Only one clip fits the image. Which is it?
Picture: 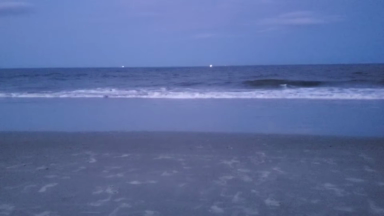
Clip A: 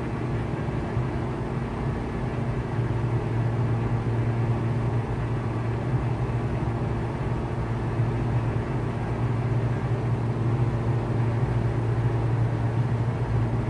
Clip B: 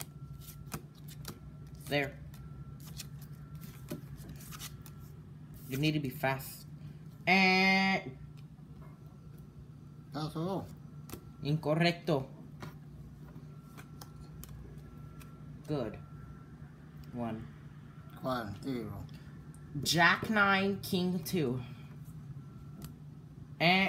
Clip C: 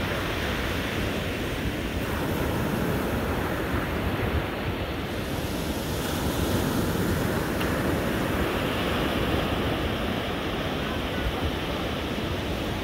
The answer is C